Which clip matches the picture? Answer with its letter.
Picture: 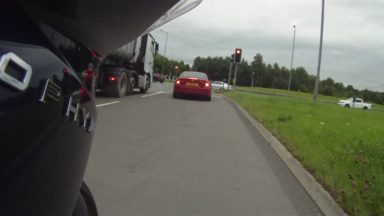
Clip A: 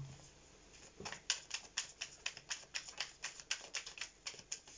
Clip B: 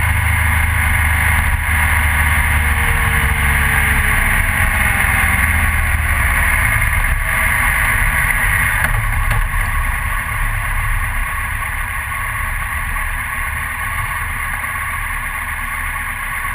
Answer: B